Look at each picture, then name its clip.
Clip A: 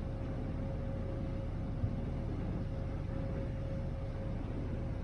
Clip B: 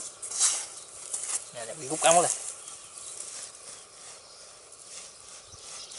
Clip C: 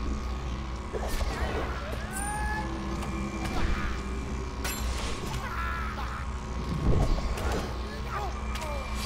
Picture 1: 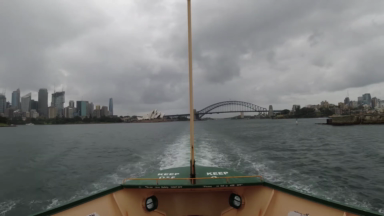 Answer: A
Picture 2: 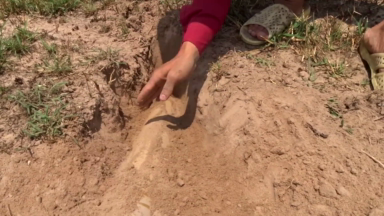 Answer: B